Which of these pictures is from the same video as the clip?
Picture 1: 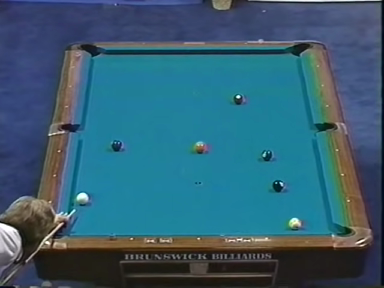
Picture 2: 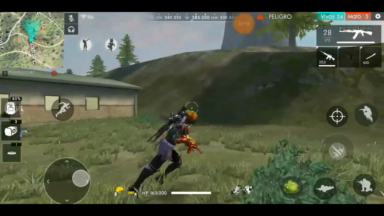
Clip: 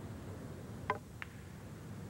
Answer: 1